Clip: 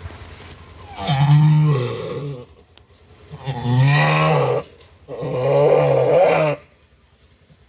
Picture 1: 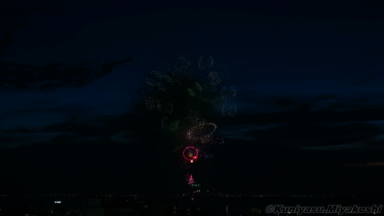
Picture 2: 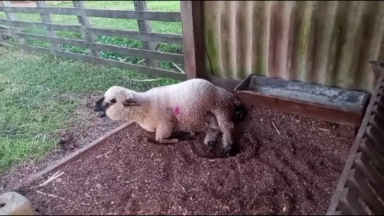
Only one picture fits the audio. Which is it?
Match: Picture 2